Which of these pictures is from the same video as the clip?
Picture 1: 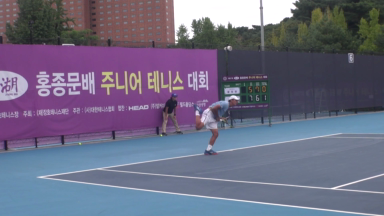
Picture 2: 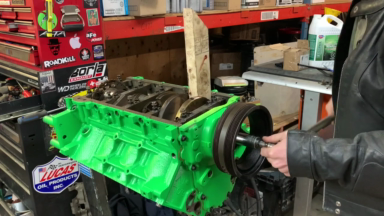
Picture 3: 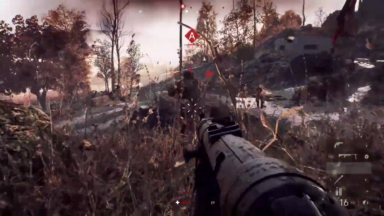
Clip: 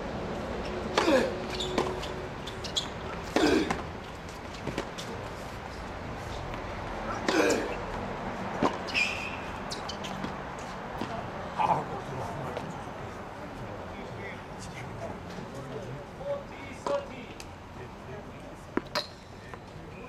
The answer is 1